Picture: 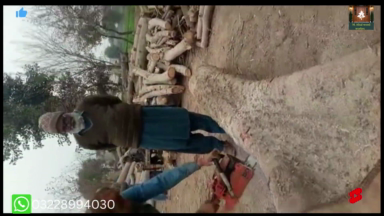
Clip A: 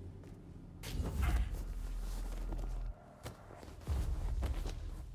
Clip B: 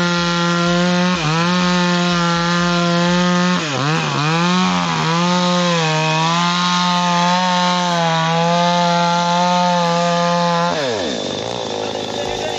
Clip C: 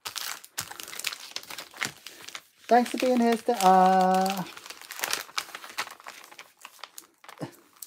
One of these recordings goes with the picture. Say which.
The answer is B